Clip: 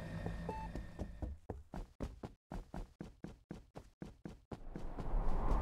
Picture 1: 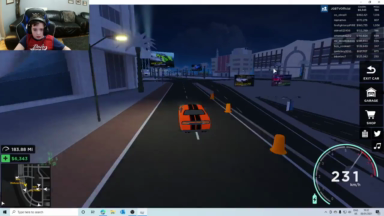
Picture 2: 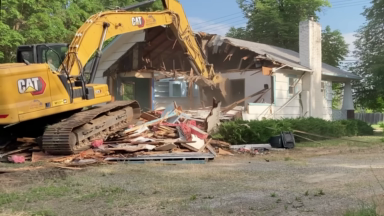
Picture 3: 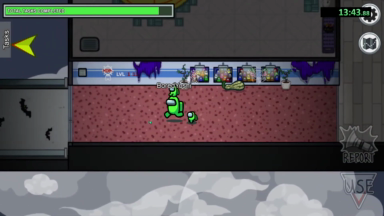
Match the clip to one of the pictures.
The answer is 3